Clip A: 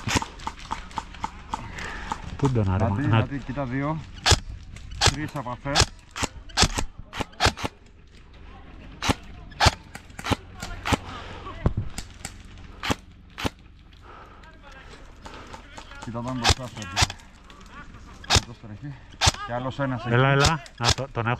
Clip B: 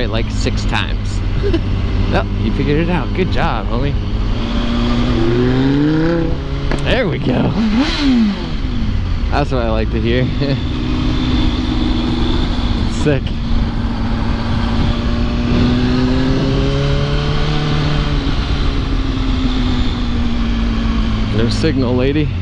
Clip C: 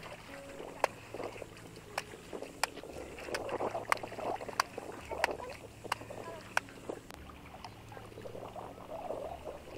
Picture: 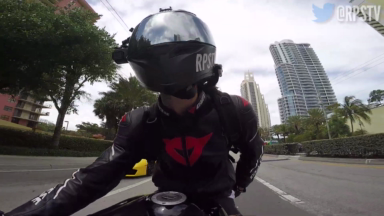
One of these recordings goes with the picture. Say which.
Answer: B